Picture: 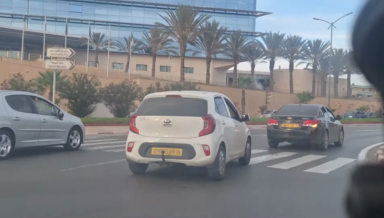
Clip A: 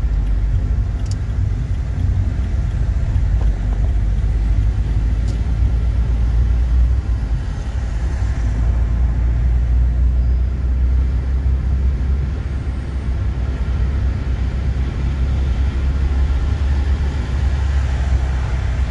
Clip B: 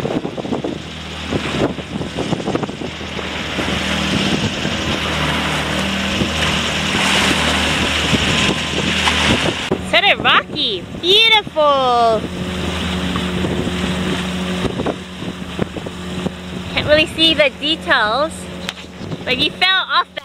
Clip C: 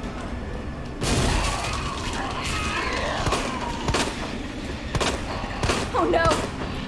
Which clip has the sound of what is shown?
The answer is A